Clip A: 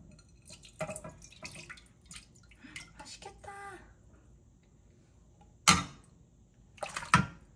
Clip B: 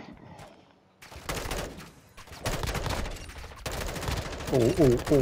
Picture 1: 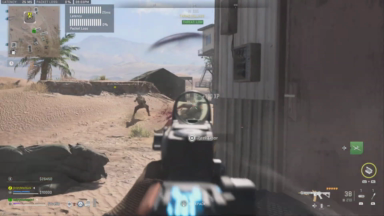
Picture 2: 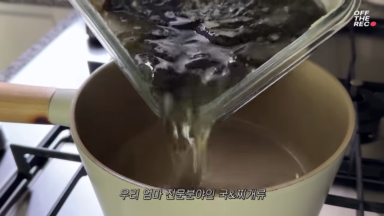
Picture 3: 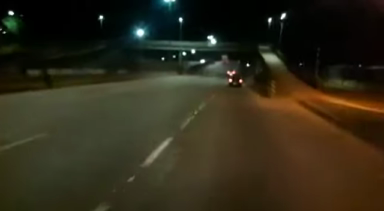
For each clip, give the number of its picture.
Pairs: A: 2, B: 1